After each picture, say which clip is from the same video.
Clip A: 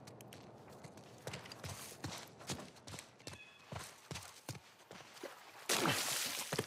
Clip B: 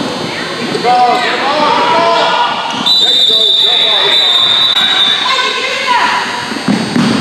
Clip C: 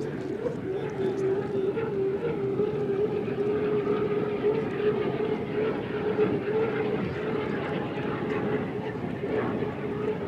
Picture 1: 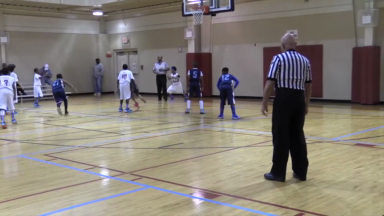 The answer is B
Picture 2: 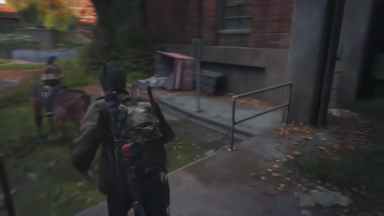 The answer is A